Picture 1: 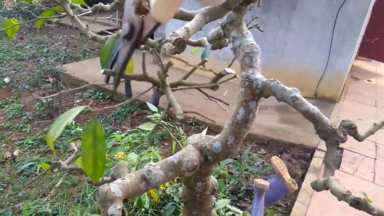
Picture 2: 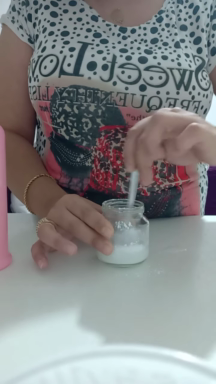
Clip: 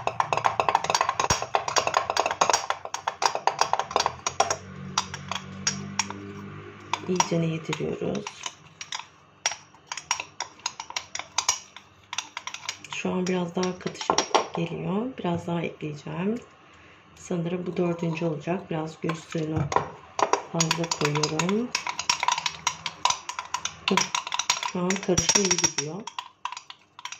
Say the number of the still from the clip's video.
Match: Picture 2